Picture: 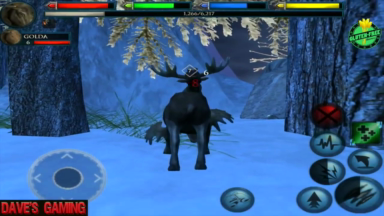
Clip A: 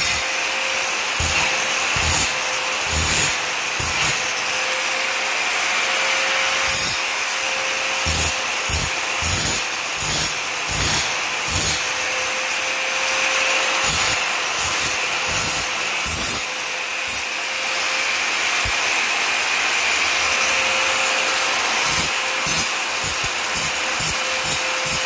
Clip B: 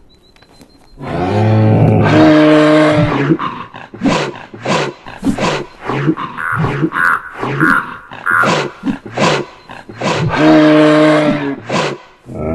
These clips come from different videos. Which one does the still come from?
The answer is B